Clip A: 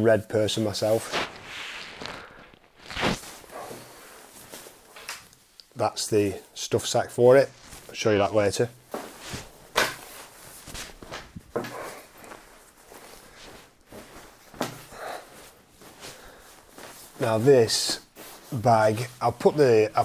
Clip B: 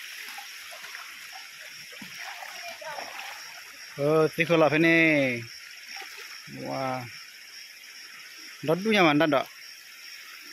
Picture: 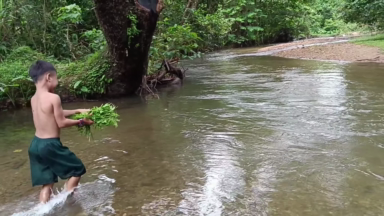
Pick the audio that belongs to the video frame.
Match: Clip B